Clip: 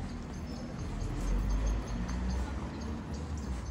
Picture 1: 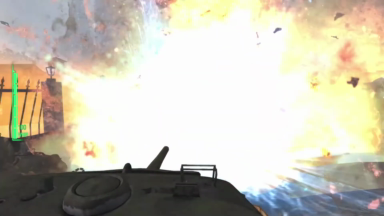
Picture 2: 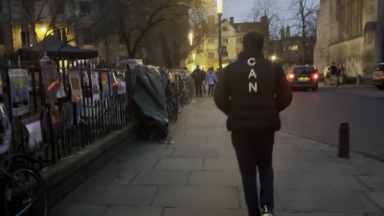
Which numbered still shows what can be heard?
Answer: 2